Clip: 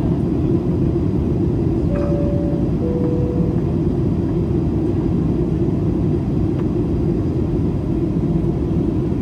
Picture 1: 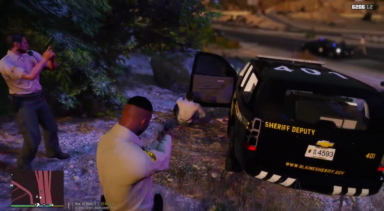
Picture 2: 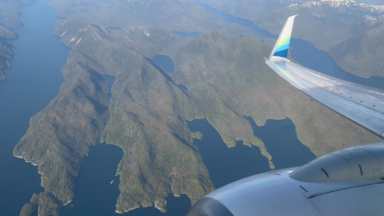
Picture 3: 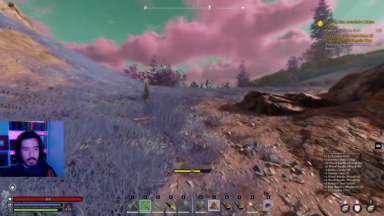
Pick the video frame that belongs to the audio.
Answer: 2